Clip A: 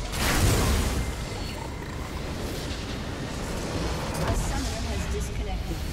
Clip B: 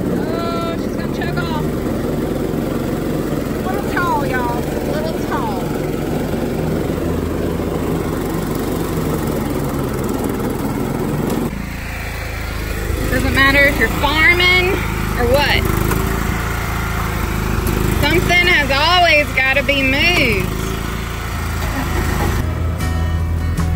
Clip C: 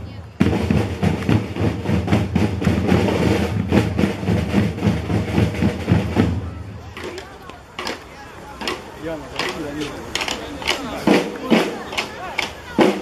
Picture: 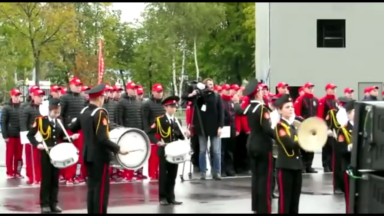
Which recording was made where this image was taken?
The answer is C